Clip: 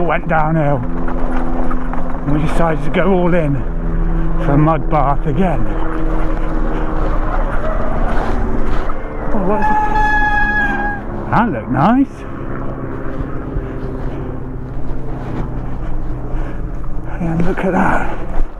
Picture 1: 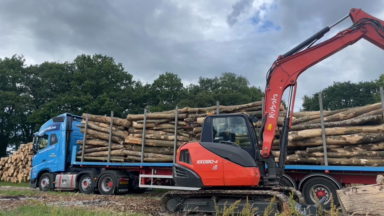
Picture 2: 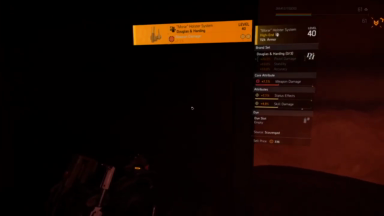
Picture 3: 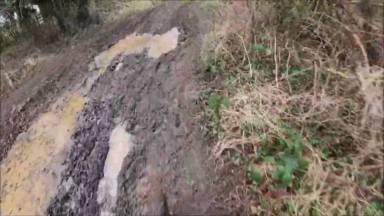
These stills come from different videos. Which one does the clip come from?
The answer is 3